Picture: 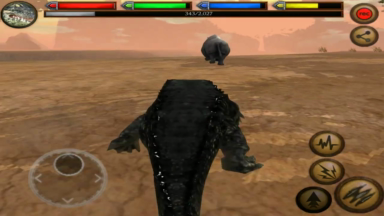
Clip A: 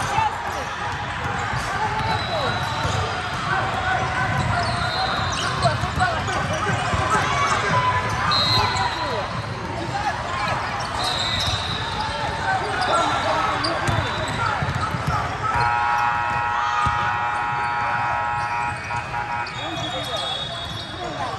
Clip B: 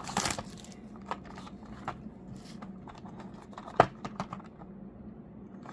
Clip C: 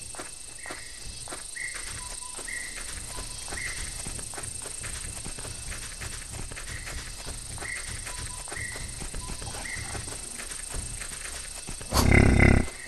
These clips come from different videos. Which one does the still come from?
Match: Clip C